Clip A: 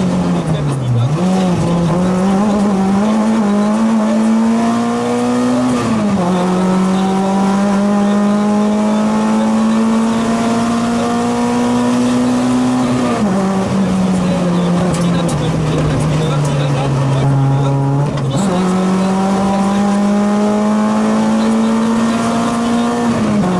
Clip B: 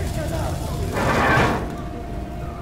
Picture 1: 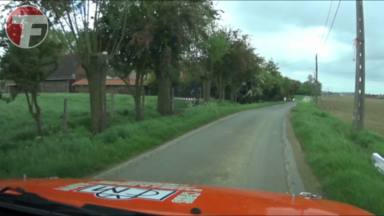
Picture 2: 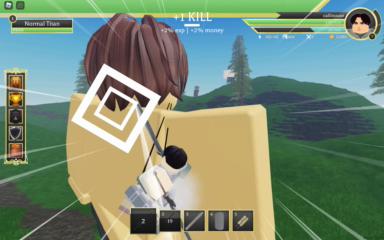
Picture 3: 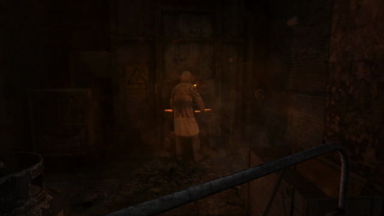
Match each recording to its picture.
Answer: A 1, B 3